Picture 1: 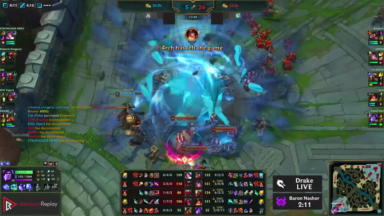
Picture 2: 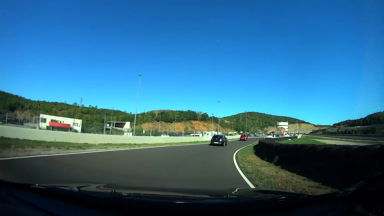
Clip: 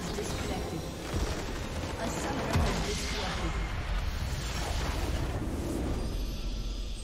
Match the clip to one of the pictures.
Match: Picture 1